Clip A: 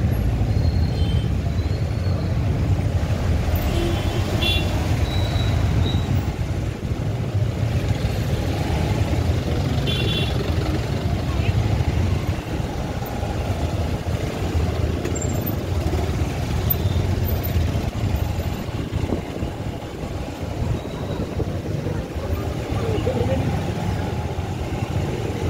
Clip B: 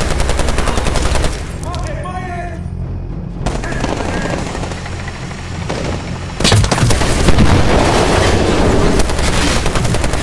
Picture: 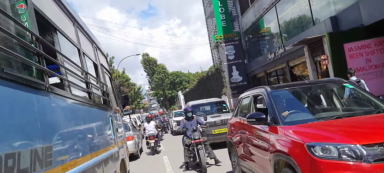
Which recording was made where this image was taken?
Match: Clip A